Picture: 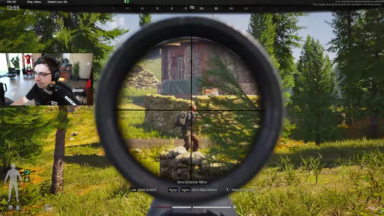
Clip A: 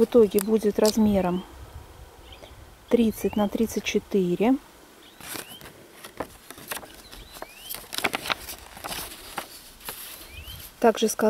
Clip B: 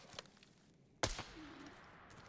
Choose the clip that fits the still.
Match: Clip B